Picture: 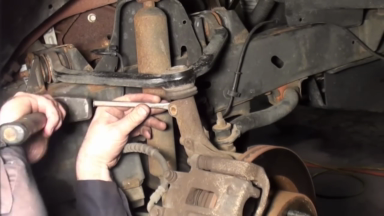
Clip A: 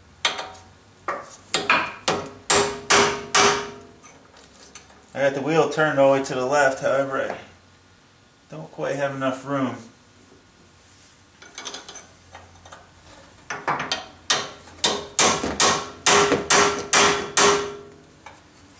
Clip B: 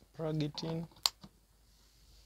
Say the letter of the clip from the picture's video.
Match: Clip A